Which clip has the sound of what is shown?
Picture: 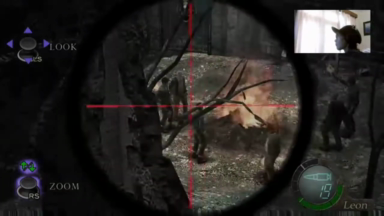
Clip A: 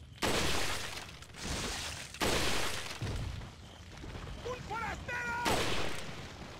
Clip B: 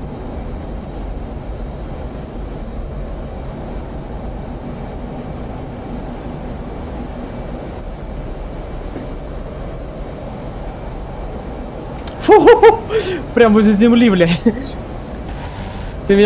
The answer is A